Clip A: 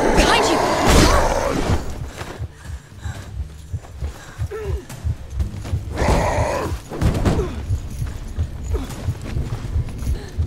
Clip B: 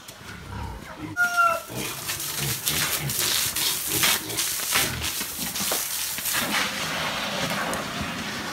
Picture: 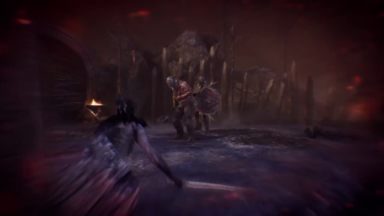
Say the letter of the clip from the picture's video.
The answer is A